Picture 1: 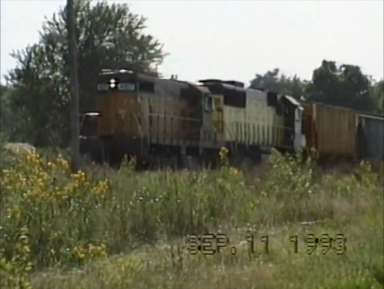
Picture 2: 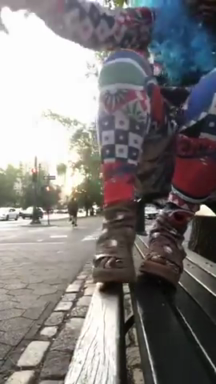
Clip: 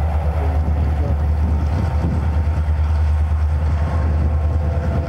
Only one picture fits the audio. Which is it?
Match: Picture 1